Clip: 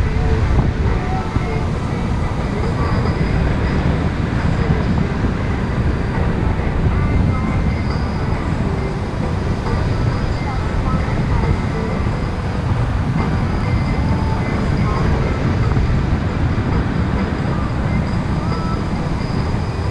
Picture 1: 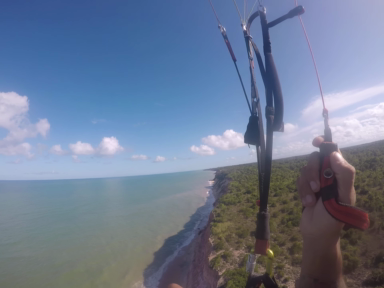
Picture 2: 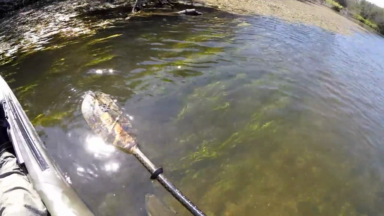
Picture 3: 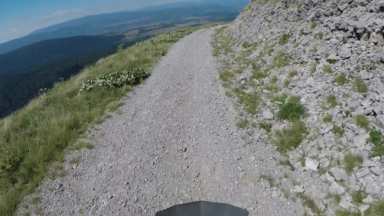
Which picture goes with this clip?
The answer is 1